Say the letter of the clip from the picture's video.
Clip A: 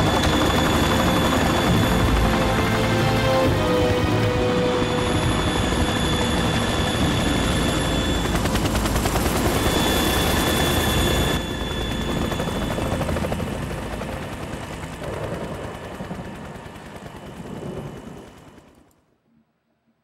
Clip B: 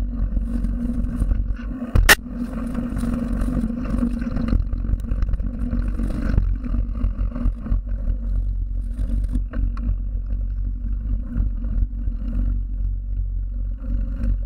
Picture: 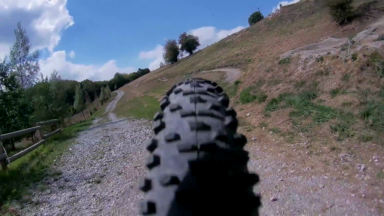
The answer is B